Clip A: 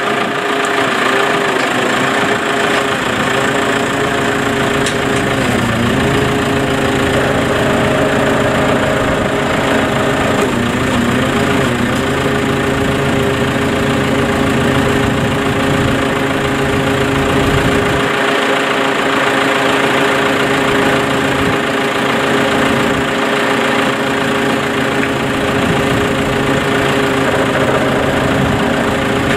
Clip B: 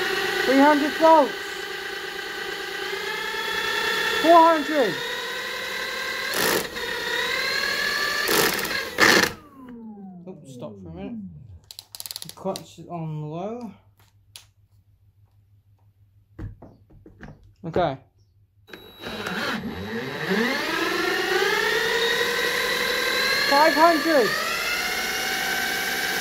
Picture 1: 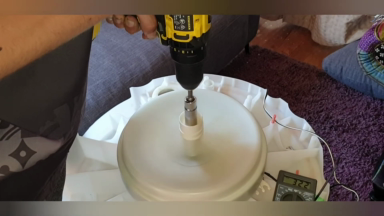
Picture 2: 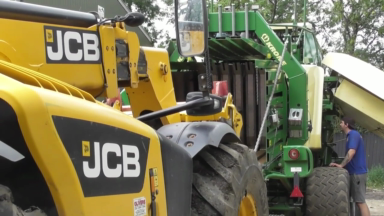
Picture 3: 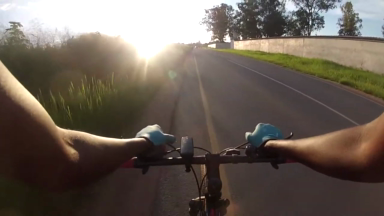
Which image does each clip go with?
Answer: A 2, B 1